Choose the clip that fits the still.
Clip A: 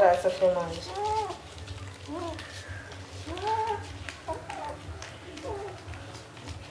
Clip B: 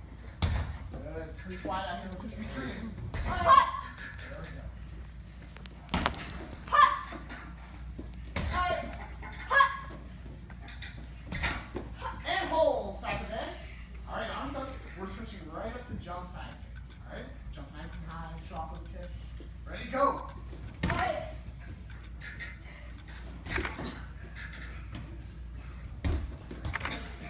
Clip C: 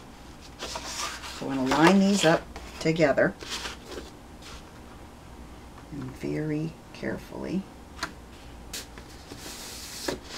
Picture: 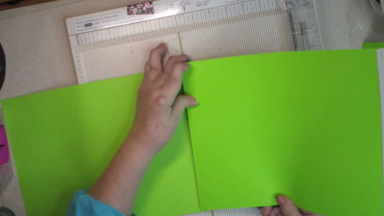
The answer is C